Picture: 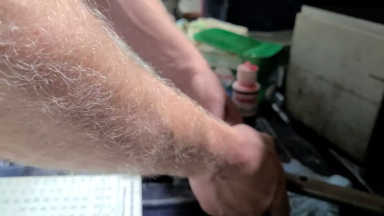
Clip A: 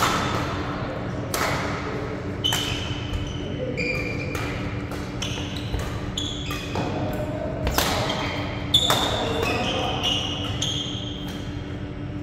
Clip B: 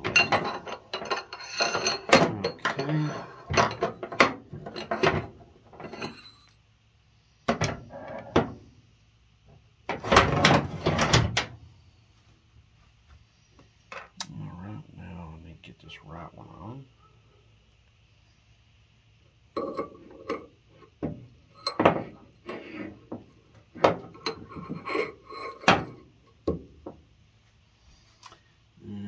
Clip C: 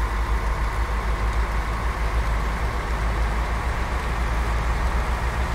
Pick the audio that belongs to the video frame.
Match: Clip B